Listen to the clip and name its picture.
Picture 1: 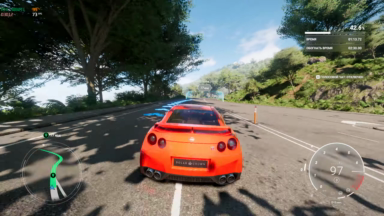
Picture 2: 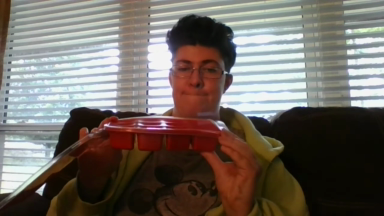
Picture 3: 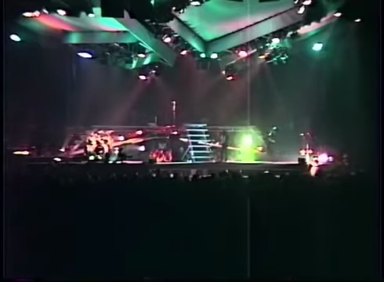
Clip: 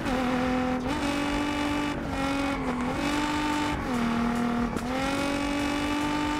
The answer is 1